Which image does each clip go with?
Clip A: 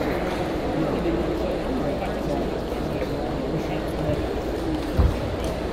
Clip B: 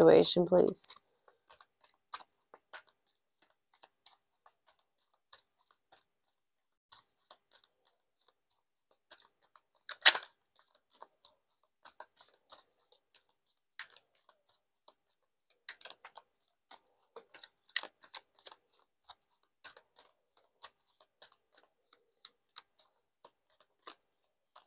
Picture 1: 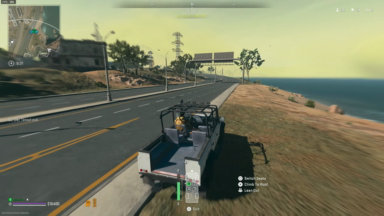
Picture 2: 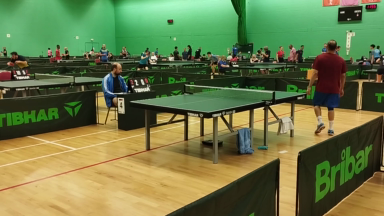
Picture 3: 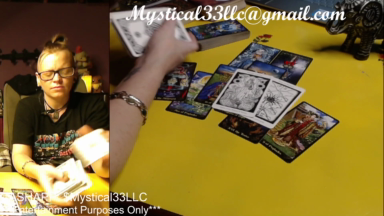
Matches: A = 2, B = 3